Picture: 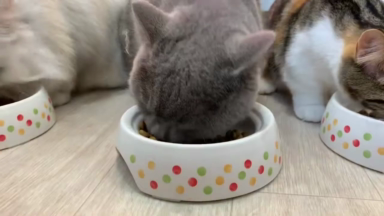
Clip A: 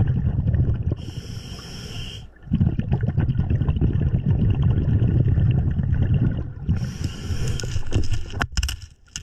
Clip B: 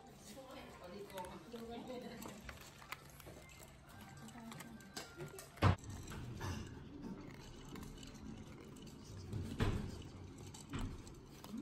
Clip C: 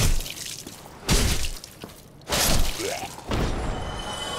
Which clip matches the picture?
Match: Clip B